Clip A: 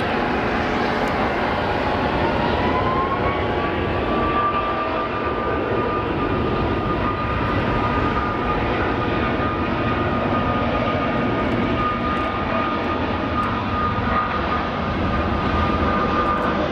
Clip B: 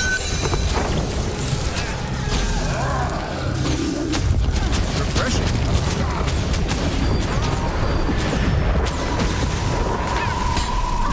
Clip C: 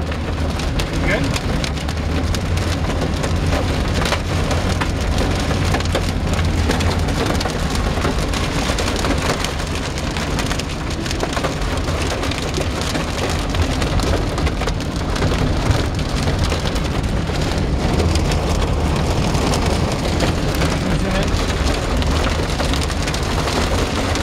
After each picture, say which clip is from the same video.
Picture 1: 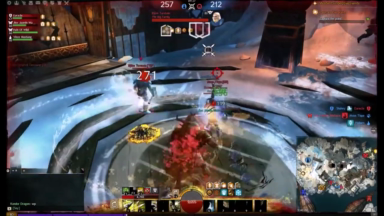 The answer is B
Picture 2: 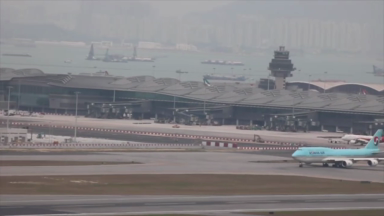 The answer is A